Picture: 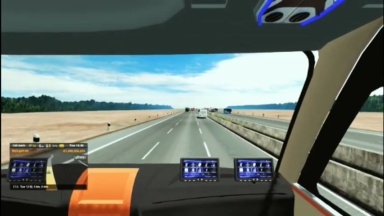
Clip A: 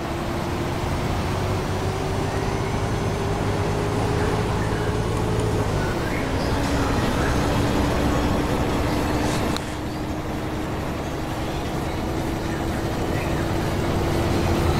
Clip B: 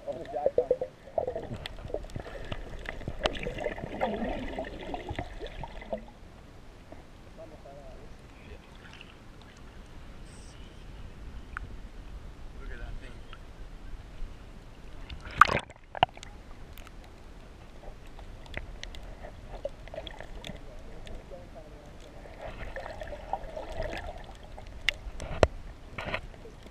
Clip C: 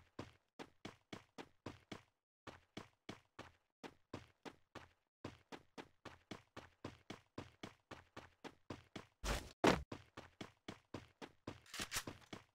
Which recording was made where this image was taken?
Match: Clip A